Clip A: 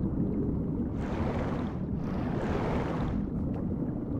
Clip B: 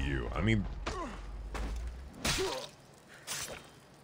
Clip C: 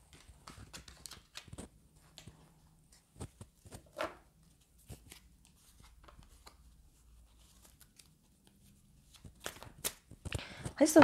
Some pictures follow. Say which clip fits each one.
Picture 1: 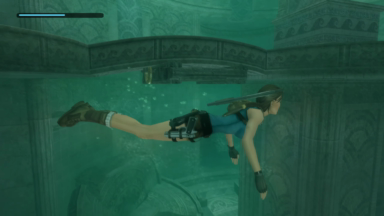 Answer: A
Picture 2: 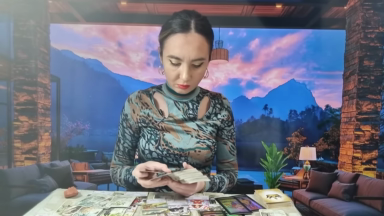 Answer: C